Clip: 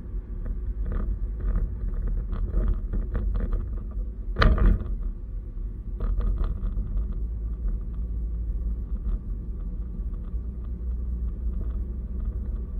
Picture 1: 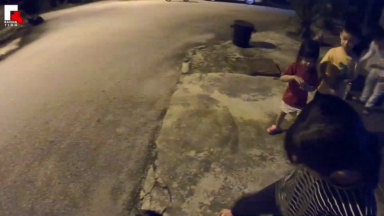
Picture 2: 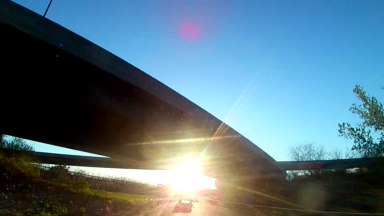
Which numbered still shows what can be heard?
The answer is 2